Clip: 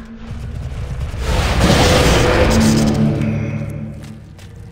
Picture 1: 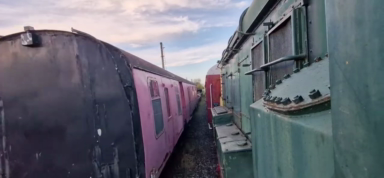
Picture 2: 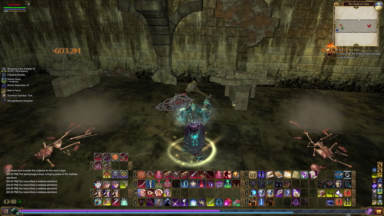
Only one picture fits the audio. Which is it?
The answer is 2